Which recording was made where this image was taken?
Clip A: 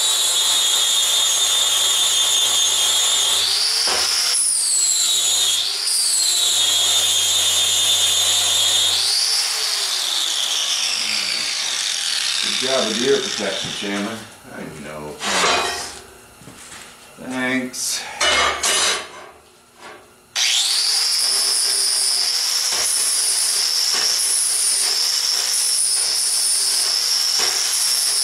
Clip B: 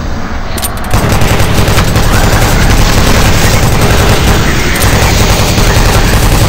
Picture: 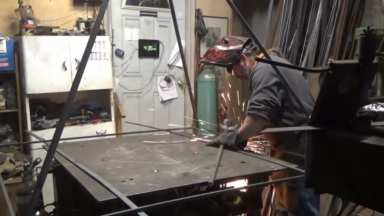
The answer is A